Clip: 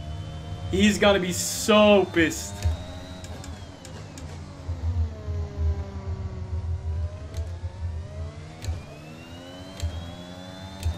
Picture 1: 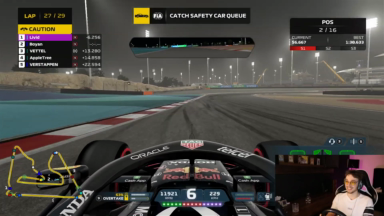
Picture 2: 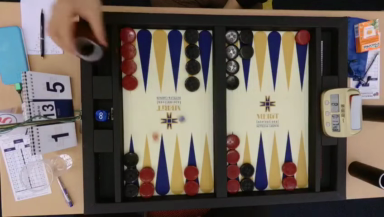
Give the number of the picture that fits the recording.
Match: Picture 1